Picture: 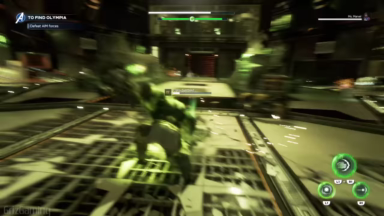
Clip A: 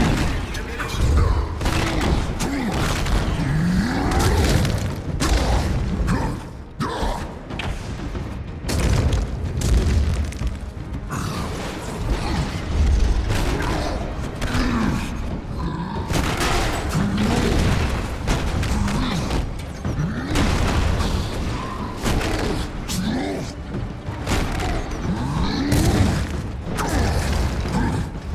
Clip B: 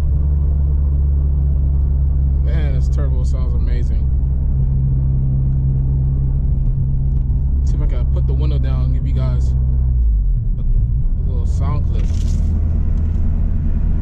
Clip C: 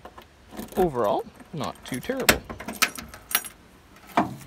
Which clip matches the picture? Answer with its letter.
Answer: A